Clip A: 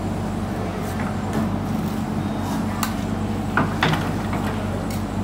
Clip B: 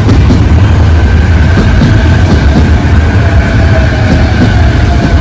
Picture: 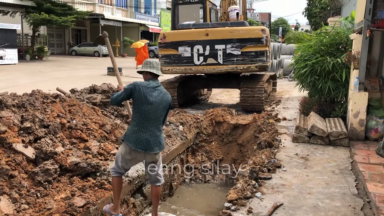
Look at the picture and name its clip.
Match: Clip A